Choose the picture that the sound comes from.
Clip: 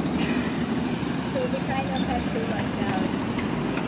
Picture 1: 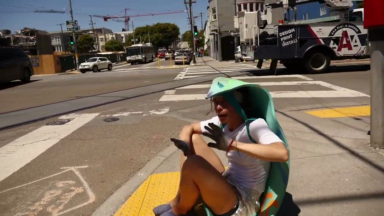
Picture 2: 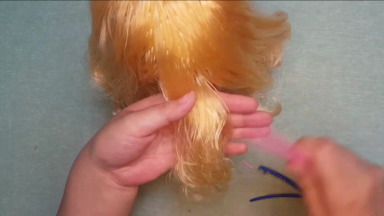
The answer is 1